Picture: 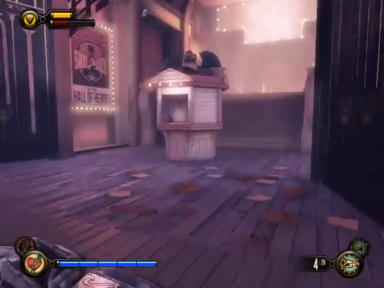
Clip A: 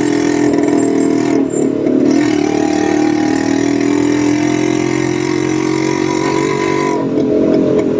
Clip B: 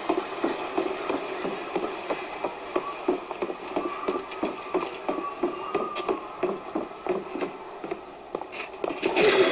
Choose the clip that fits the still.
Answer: B